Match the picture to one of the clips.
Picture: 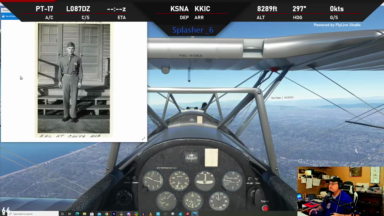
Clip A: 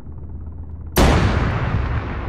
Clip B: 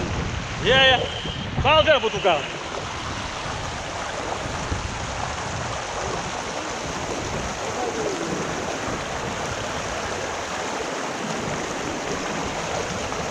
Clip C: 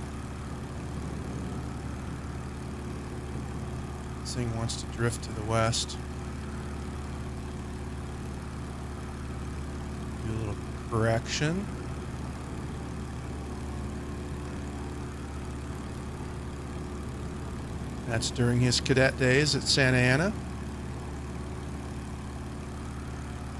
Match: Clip C